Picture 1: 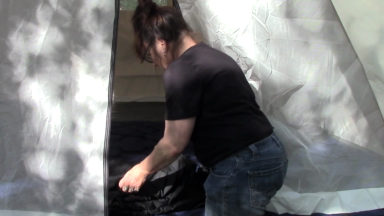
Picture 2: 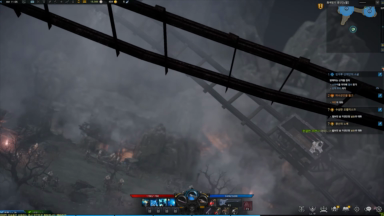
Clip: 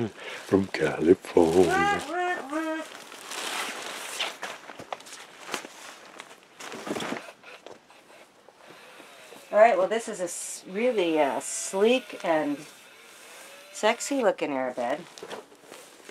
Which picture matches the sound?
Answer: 1